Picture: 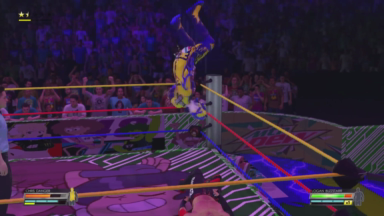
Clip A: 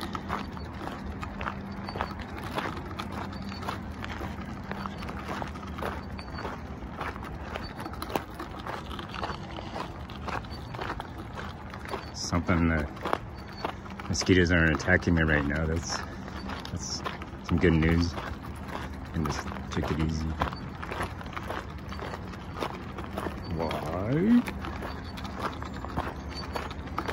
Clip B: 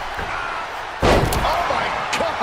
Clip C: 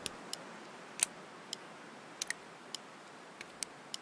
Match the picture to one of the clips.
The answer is B